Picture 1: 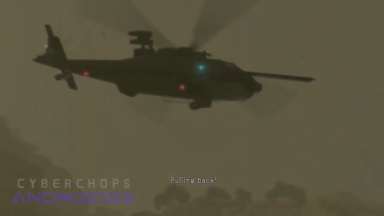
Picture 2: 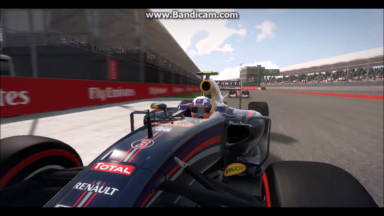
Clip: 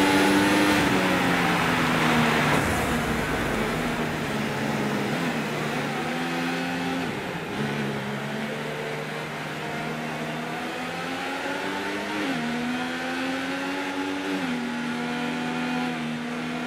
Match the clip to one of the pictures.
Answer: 2